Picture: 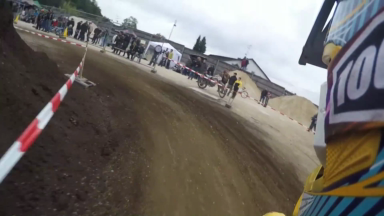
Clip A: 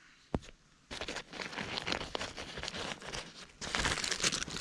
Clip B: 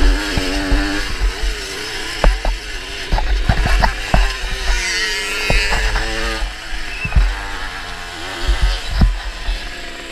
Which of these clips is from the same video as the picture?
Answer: B